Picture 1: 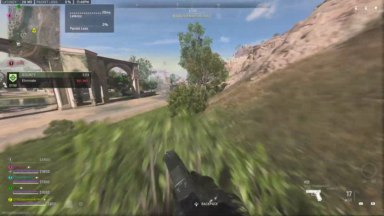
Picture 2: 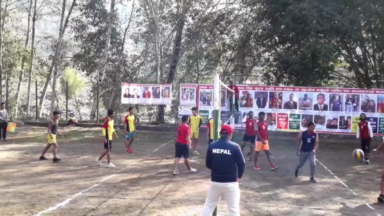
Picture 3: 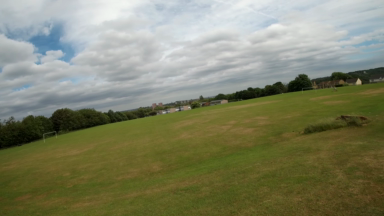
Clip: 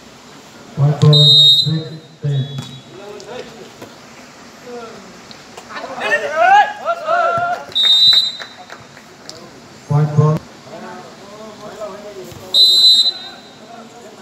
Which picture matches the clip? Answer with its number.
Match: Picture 2